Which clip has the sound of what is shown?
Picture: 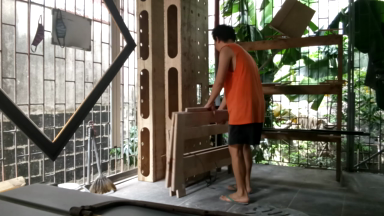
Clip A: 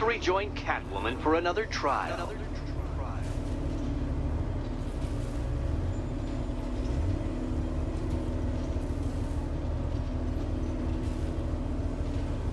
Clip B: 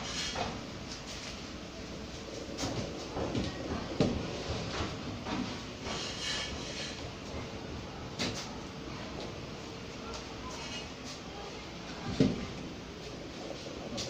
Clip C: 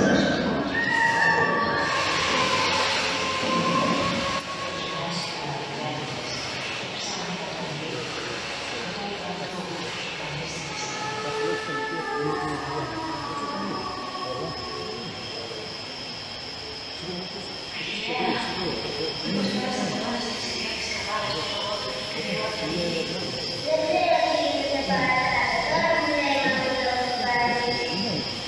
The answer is B